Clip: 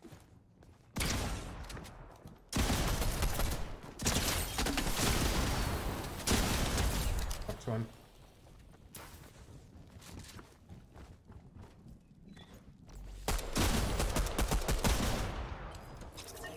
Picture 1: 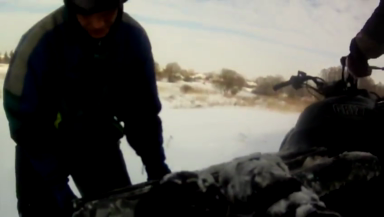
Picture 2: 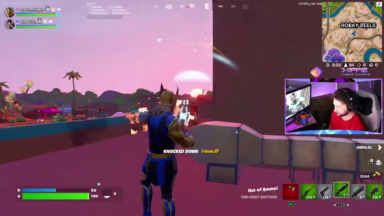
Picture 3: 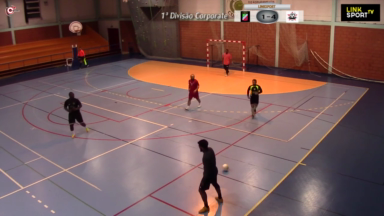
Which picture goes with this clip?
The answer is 2